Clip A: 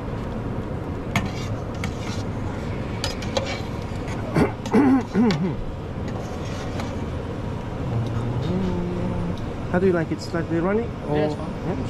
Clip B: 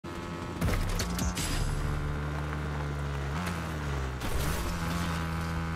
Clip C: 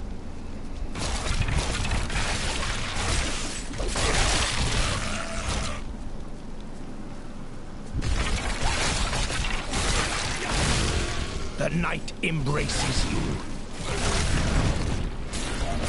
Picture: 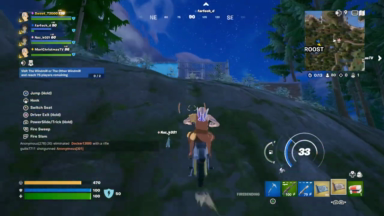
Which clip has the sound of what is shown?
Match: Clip B